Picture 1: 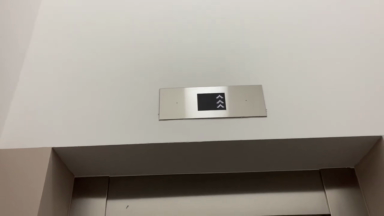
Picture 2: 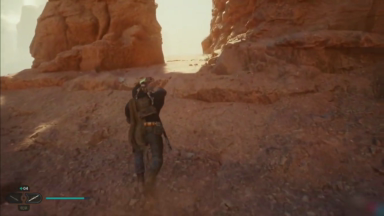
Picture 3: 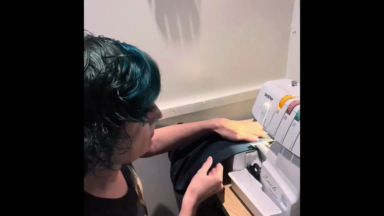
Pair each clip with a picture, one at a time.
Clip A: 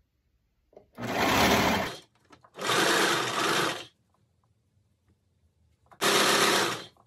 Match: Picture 3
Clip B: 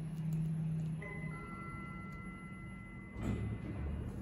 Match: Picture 1